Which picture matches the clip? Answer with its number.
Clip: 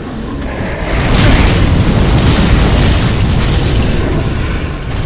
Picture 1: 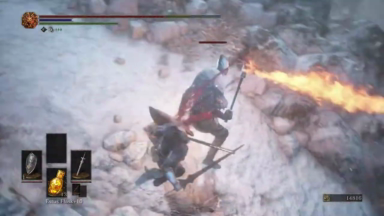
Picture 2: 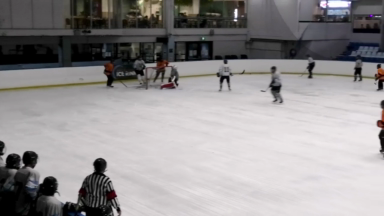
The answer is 1